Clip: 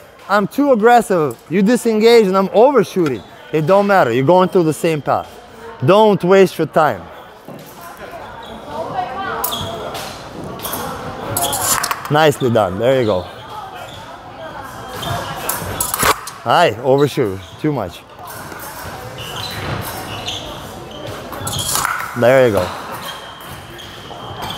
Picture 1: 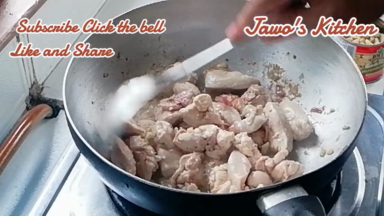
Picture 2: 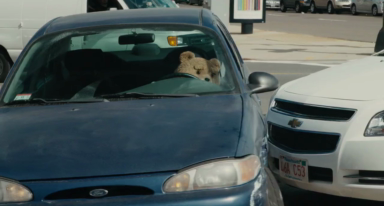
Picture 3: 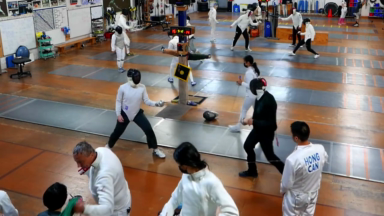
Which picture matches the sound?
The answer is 3